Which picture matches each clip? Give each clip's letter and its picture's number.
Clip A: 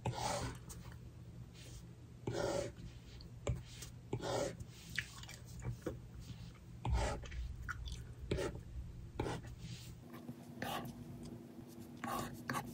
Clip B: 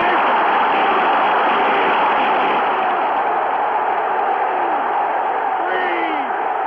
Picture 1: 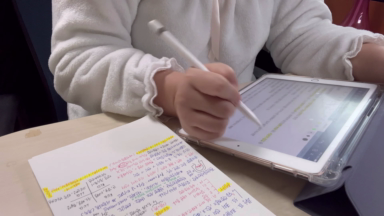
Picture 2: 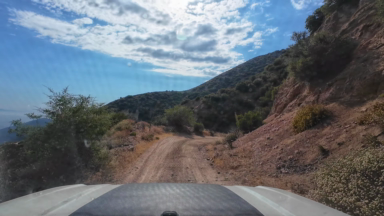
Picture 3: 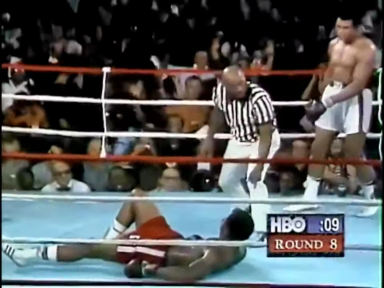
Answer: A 1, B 3